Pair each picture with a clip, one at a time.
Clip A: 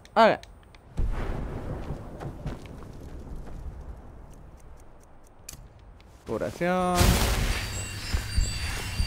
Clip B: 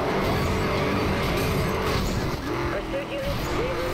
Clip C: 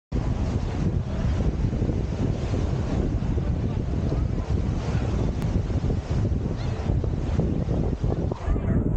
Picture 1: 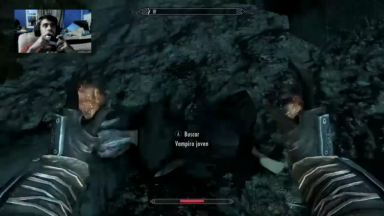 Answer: A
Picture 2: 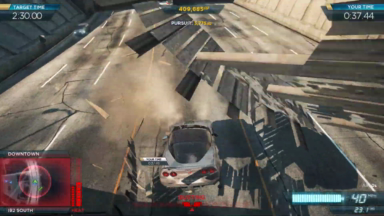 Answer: B